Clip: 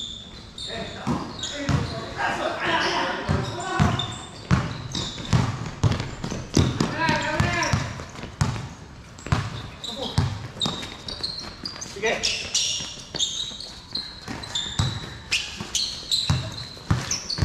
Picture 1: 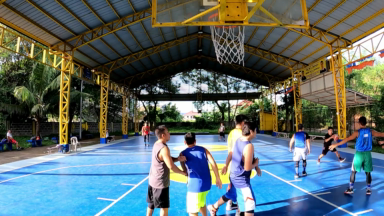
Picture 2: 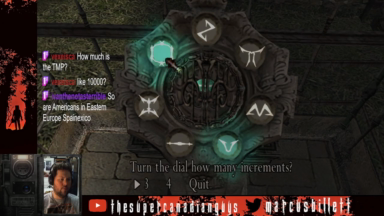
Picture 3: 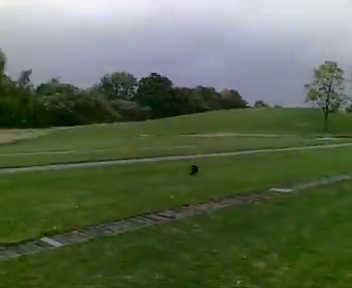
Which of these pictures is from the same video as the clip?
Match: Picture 1